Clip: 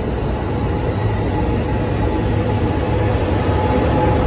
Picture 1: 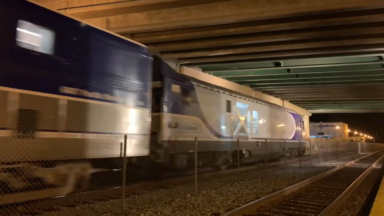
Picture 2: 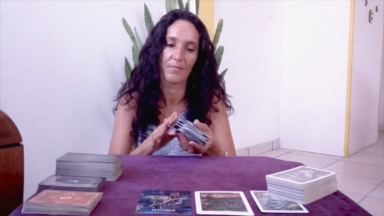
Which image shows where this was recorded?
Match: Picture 1